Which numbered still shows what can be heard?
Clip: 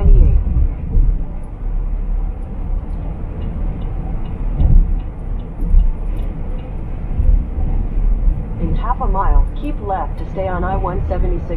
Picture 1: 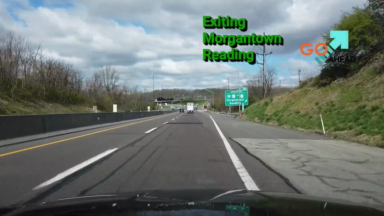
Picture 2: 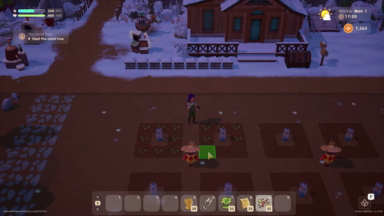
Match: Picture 1